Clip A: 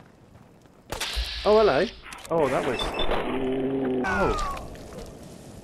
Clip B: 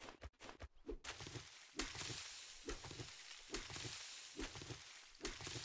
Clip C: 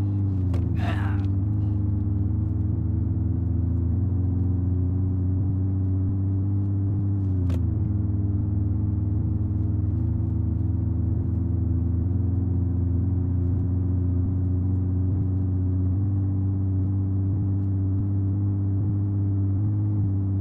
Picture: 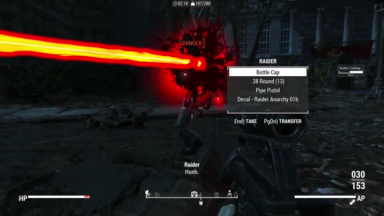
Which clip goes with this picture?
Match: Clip A